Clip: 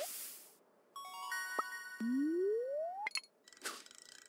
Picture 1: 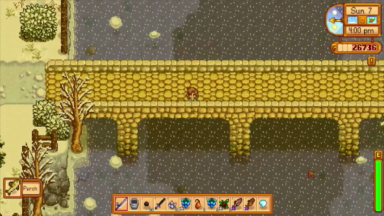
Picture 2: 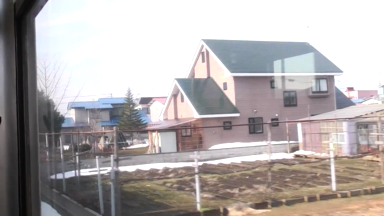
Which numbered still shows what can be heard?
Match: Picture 1